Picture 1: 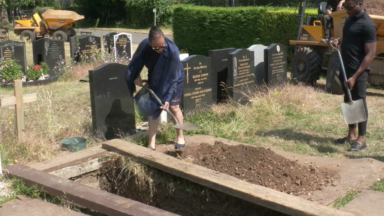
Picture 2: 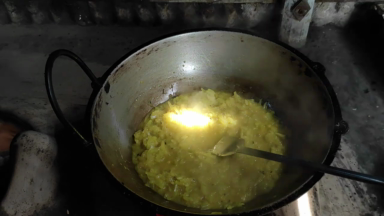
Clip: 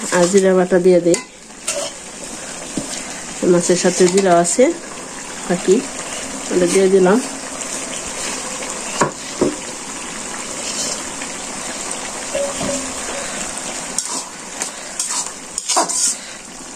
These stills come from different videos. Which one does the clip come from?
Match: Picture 2